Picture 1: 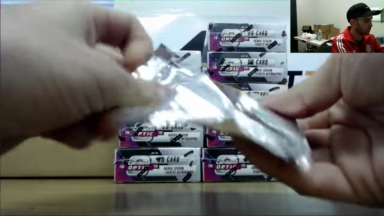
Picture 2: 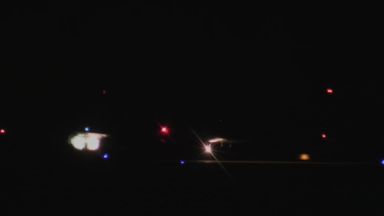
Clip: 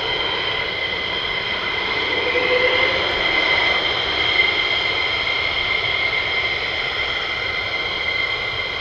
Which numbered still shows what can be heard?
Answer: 2